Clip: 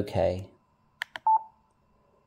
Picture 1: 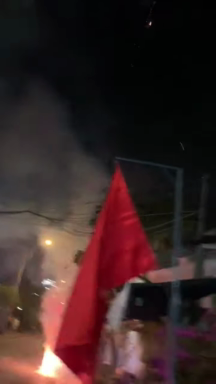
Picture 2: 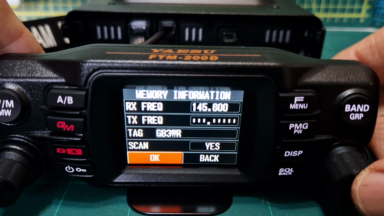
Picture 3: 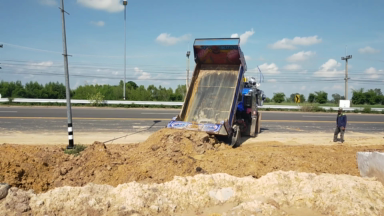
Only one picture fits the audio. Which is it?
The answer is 2